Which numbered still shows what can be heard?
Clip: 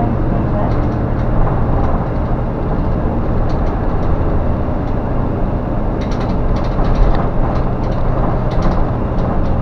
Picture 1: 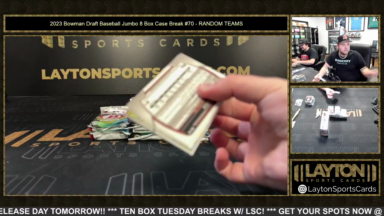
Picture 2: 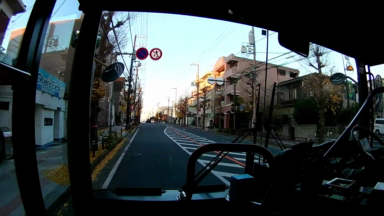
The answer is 2